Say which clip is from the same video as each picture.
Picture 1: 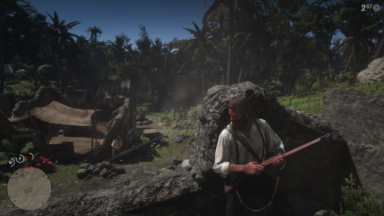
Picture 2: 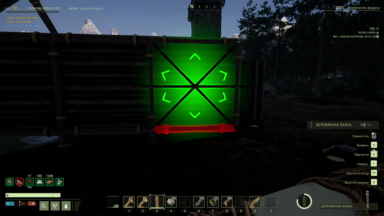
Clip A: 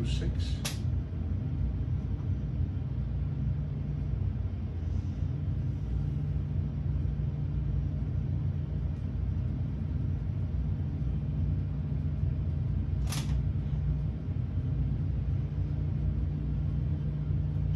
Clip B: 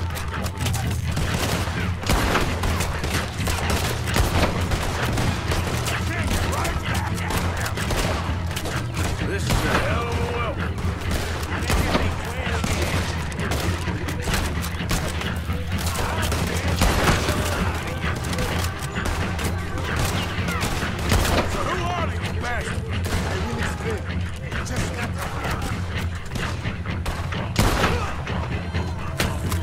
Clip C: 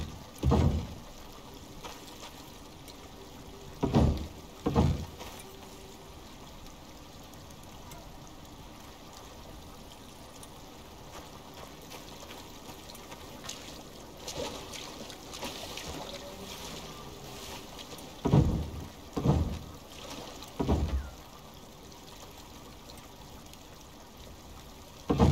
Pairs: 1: B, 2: C